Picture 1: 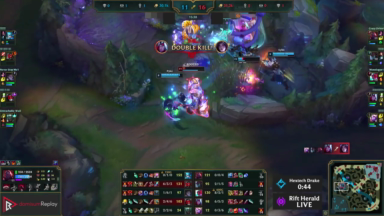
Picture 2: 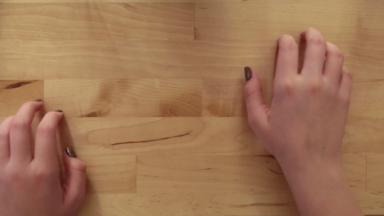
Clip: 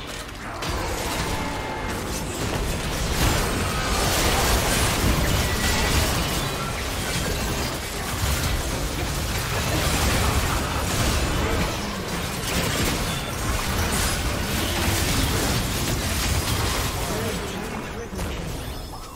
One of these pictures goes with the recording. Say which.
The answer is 1